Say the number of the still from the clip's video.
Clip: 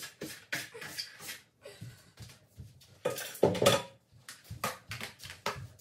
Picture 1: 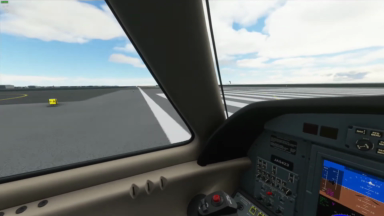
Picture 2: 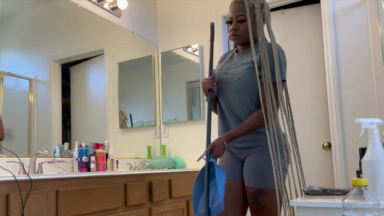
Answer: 2